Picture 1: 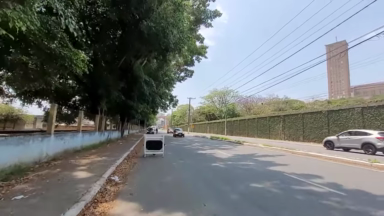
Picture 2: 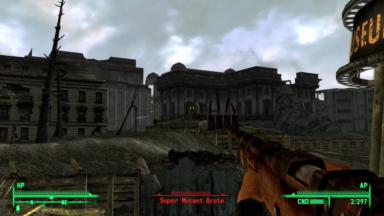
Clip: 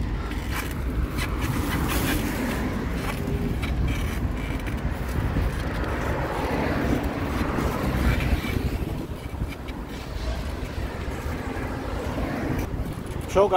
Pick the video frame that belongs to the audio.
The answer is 1